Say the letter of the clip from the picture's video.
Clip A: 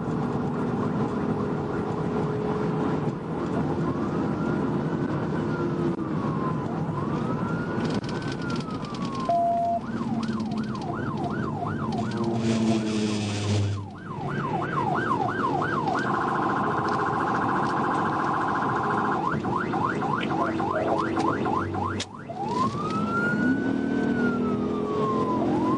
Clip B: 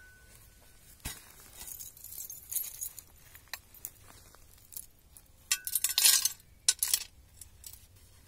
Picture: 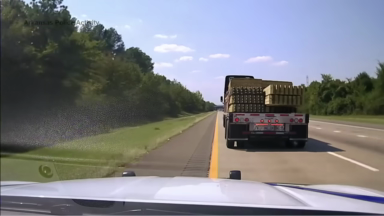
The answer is A